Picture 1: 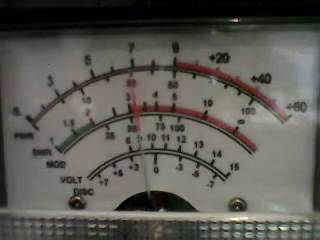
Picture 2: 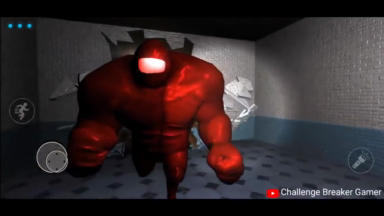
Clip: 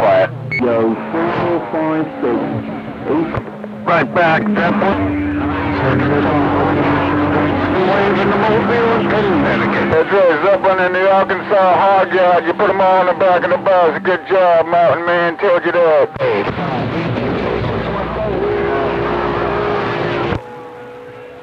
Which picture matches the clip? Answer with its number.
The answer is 1